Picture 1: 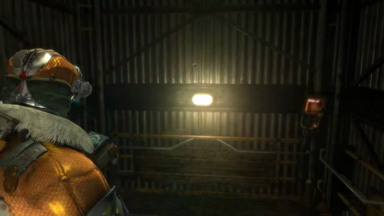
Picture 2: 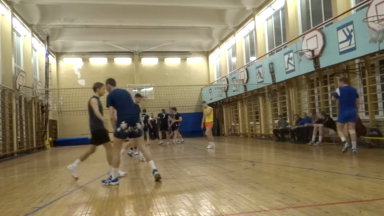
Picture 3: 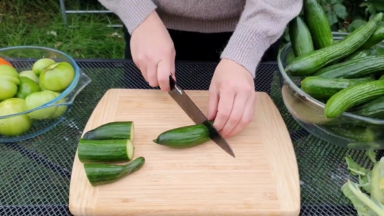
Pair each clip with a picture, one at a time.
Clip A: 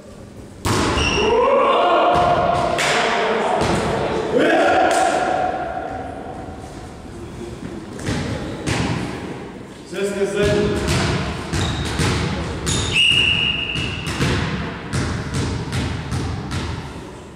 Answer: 2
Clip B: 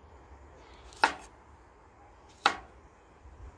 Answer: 3